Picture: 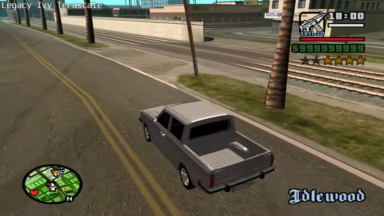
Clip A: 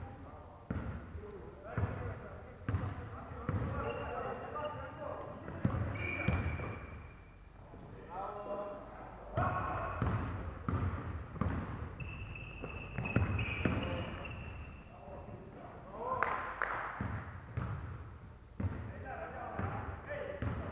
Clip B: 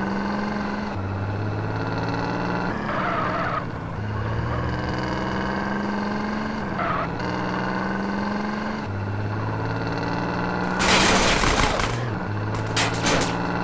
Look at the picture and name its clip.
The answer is B